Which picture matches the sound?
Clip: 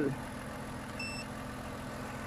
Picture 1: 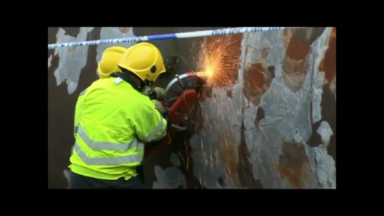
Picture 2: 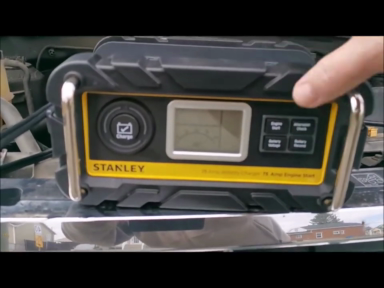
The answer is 2